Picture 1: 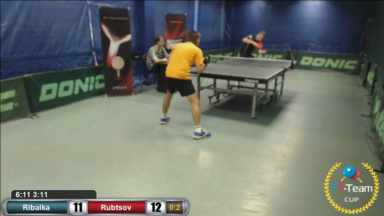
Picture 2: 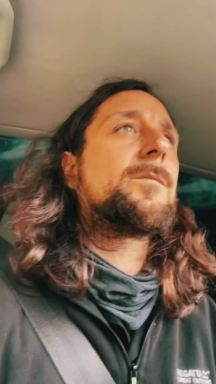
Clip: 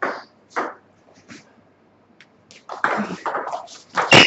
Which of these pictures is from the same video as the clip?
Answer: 1